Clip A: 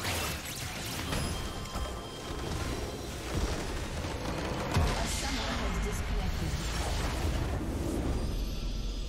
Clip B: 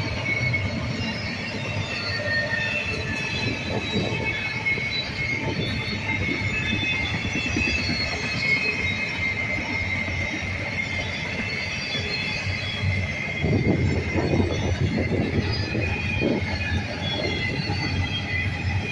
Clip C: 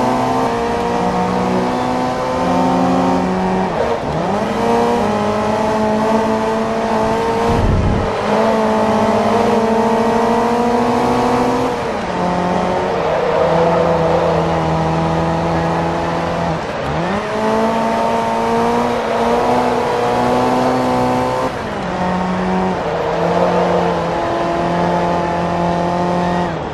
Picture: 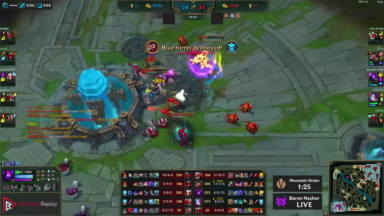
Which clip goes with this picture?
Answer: A